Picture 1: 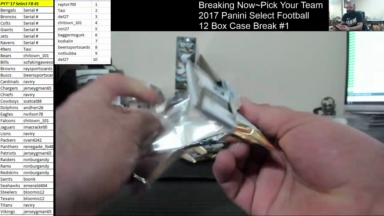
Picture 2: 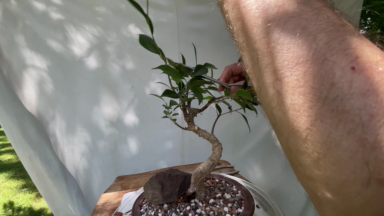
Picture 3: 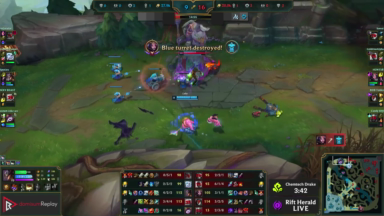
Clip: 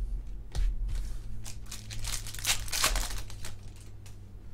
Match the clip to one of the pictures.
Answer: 1